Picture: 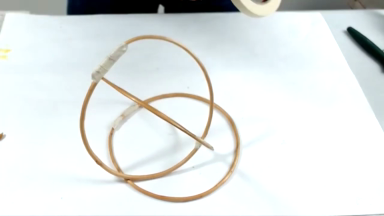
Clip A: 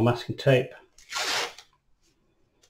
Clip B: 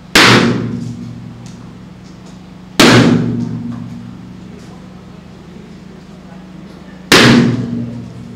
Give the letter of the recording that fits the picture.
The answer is A